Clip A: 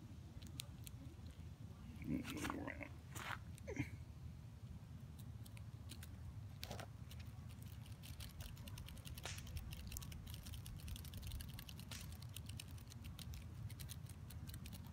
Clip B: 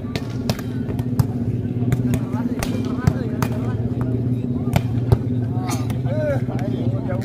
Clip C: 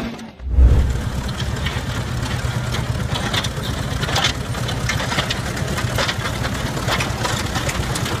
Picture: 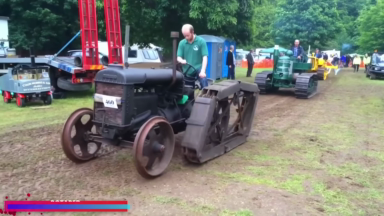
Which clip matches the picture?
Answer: C